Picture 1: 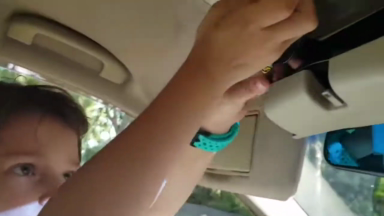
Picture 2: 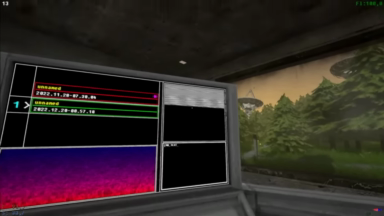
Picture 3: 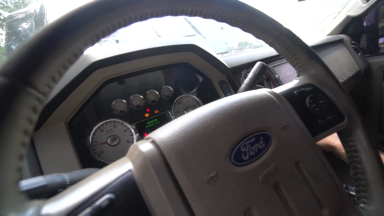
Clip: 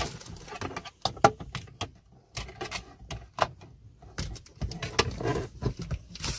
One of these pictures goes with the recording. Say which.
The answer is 1